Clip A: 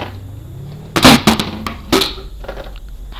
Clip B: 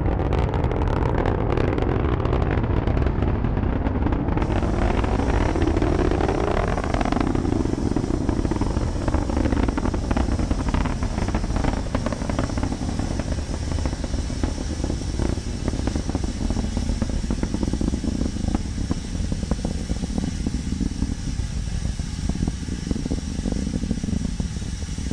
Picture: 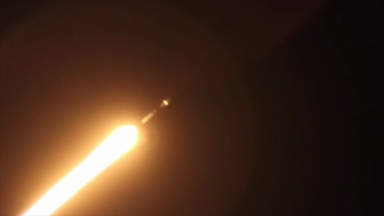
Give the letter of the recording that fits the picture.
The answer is B